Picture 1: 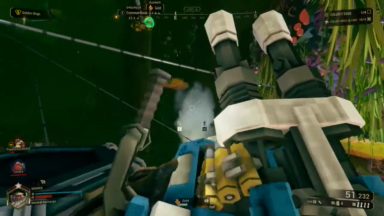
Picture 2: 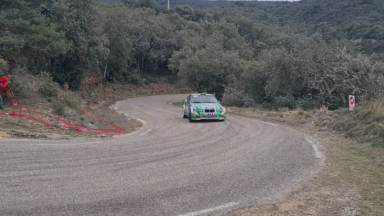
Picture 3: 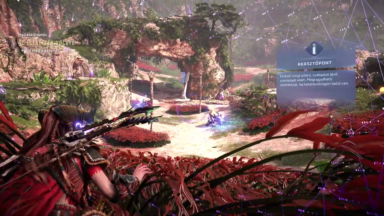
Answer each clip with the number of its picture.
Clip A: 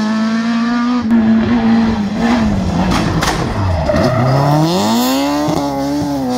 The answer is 2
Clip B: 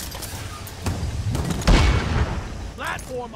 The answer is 1